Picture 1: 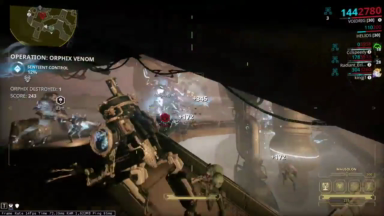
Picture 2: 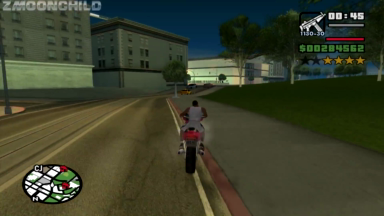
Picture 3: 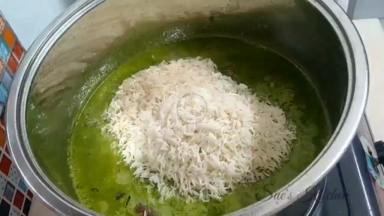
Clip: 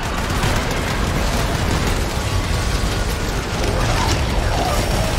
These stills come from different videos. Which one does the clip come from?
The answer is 1